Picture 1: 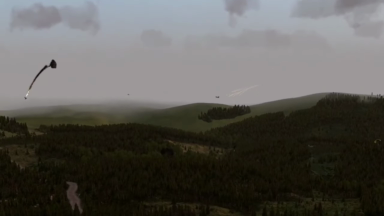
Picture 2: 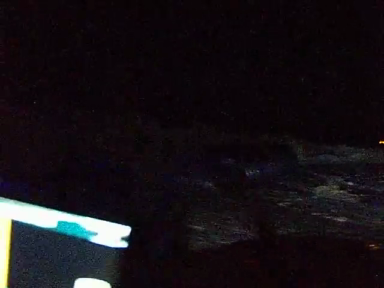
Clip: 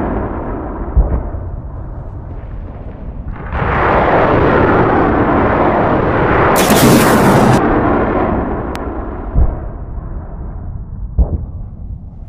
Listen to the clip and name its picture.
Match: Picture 1